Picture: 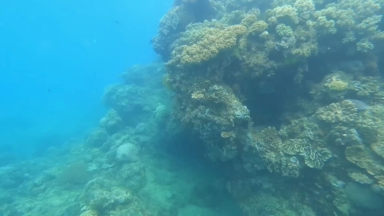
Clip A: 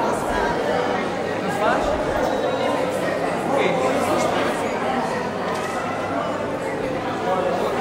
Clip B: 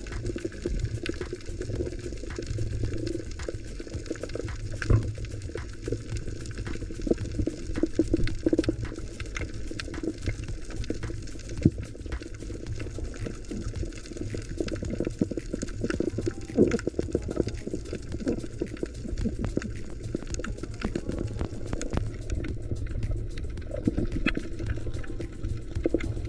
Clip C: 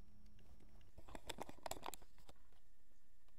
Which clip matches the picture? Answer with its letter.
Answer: B